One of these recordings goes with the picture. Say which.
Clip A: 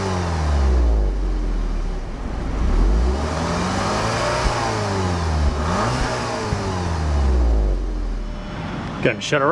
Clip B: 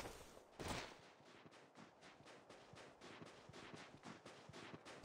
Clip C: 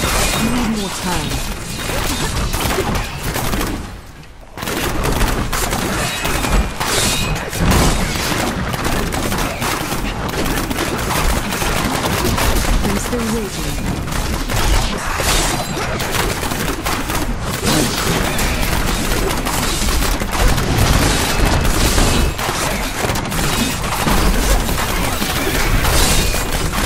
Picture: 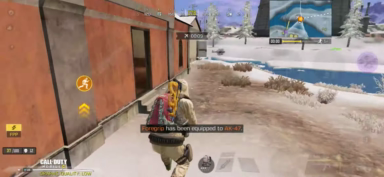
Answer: B